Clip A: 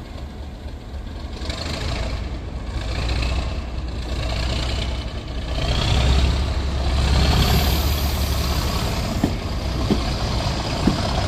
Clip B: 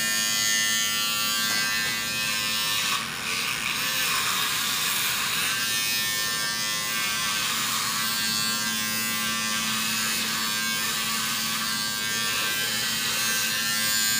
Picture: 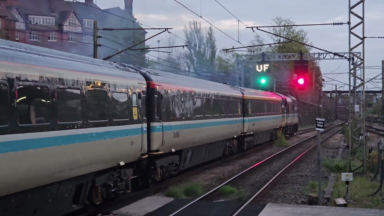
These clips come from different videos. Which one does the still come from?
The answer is A